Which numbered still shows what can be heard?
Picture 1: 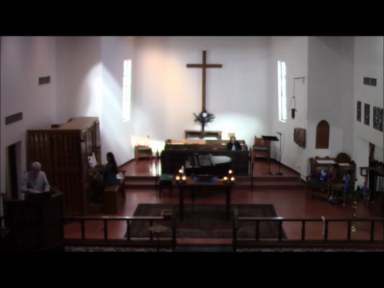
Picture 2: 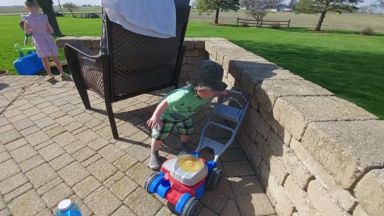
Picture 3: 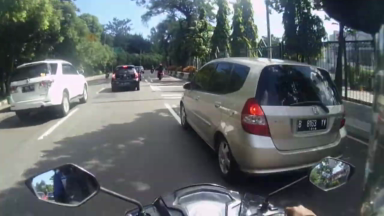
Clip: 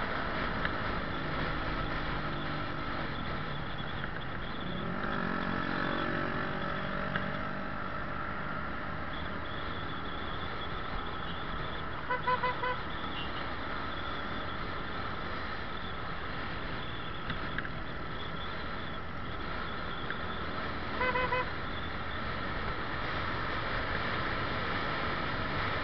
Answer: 3